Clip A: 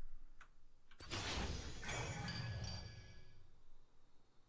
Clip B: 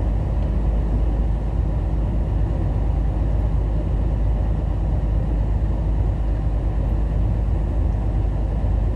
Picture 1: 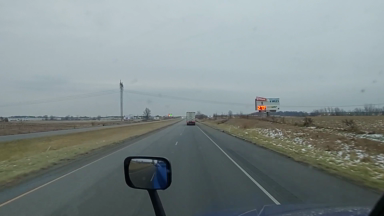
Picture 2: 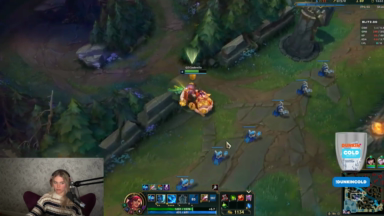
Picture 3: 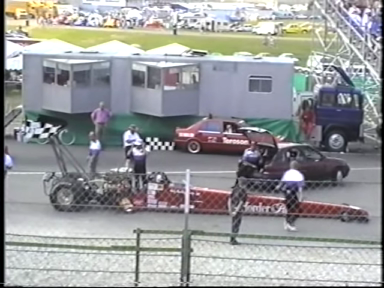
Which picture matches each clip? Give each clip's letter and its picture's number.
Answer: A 2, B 1